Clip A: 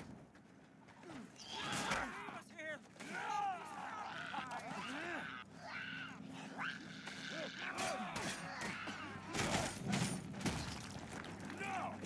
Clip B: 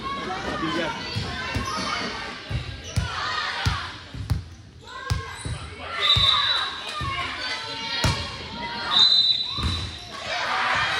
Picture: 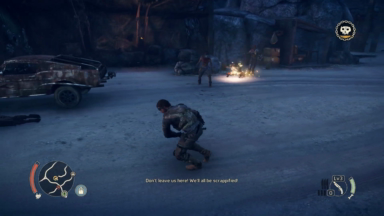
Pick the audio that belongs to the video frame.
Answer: A